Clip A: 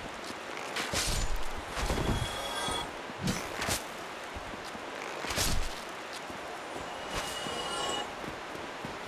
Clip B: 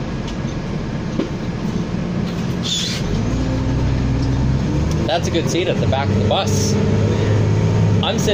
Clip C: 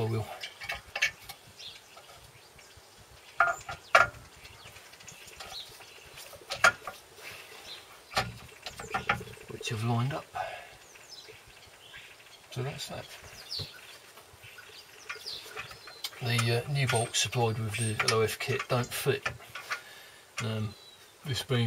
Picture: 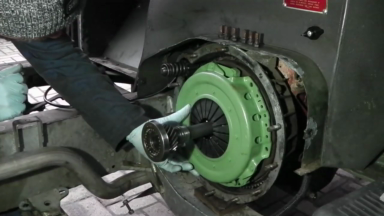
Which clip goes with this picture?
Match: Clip C